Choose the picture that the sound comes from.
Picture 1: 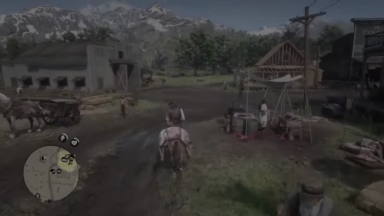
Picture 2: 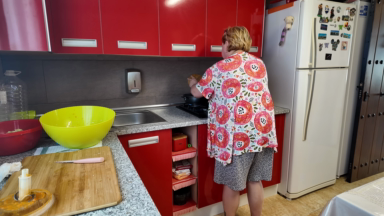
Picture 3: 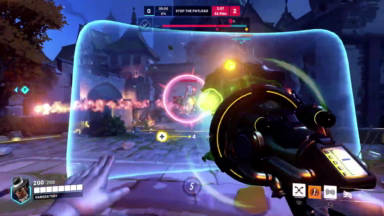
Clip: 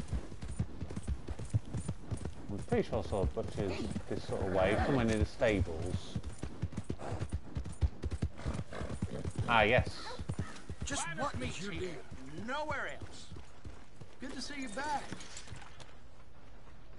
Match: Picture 1